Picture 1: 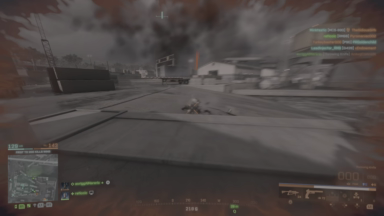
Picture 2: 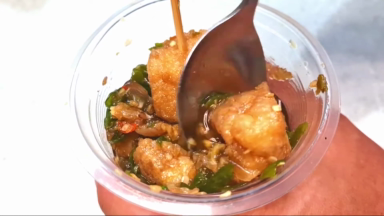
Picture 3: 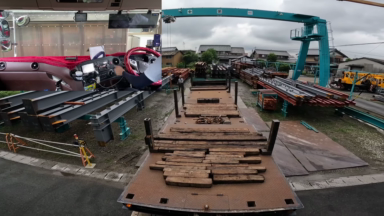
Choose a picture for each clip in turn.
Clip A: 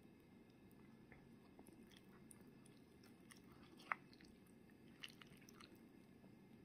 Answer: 2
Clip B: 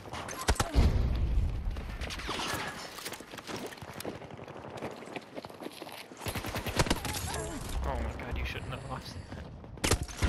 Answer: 1